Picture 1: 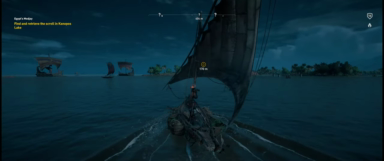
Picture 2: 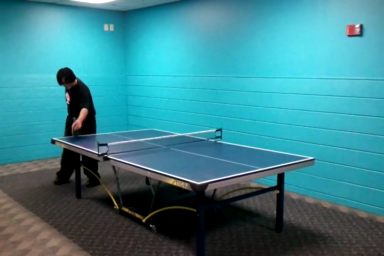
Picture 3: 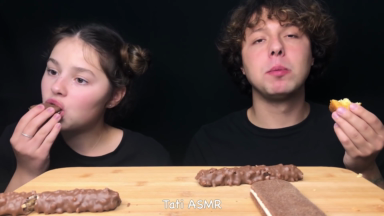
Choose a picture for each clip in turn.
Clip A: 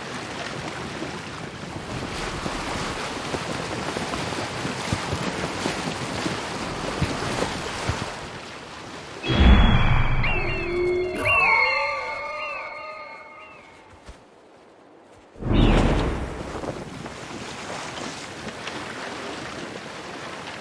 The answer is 1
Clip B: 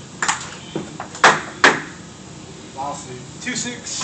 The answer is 2